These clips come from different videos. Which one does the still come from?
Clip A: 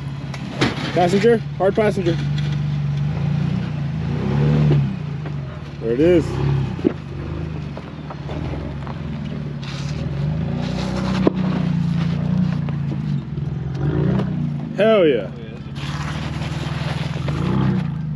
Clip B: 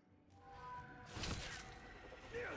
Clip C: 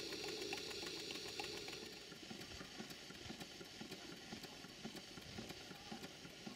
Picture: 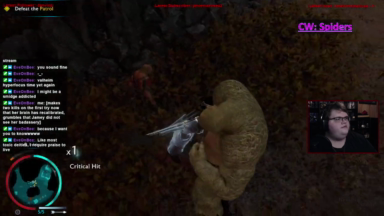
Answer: B